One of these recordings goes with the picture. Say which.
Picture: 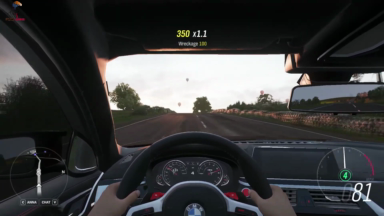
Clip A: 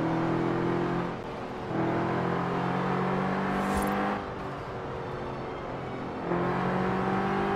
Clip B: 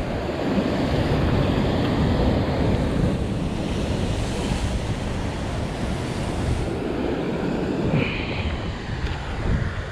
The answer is A